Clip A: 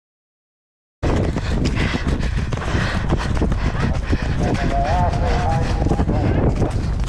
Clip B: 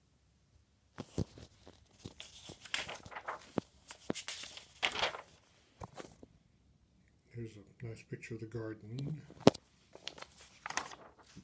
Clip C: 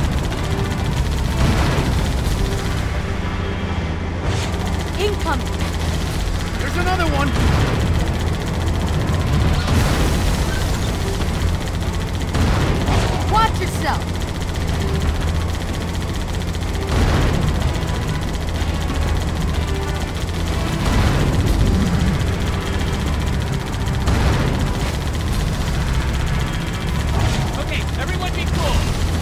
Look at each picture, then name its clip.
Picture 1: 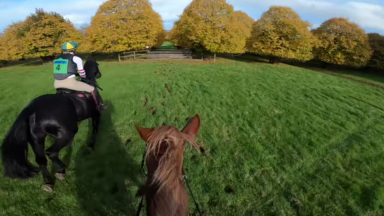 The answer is A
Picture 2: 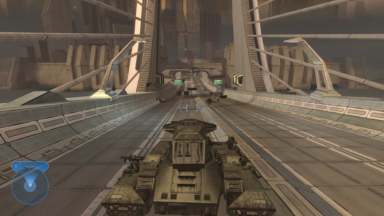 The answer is C